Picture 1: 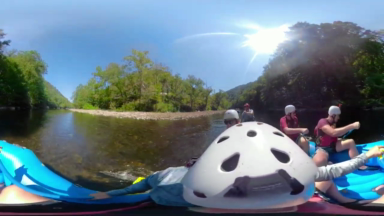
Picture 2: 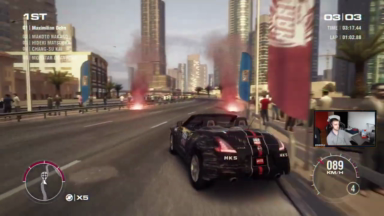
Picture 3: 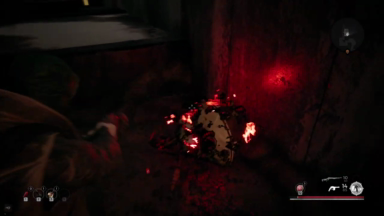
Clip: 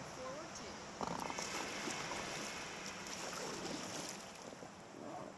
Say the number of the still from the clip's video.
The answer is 1